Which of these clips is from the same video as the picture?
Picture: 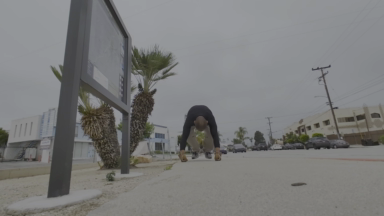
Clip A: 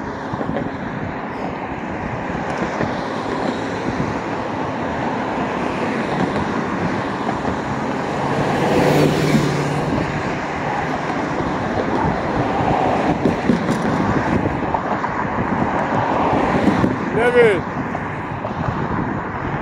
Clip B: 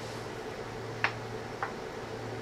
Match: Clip A